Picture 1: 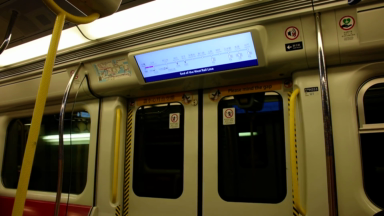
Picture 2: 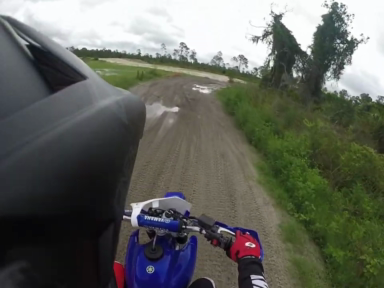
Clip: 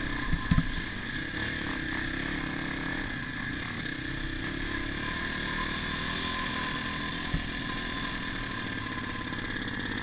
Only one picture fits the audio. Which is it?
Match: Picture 2